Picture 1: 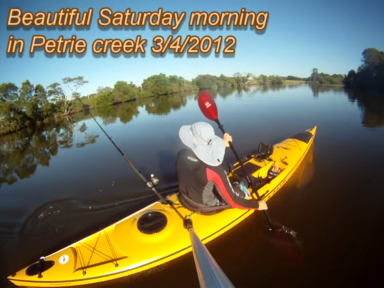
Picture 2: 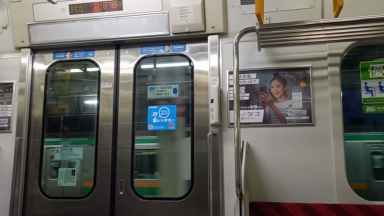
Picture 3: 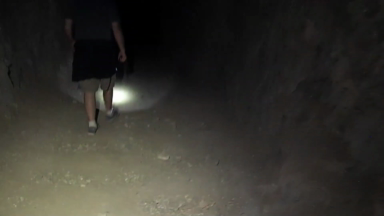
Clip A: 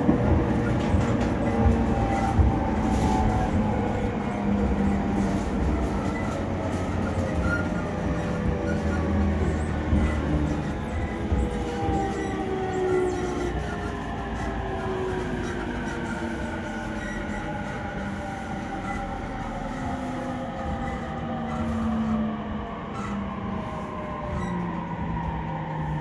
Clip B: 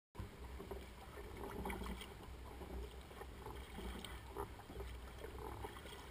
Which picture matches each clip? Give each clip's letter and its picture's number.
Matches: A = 2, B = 1